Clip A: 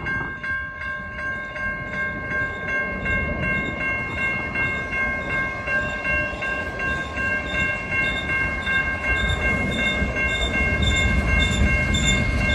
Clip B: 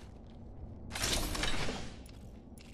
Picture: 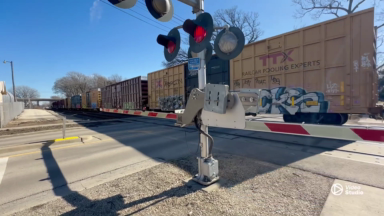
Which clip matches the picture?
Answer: A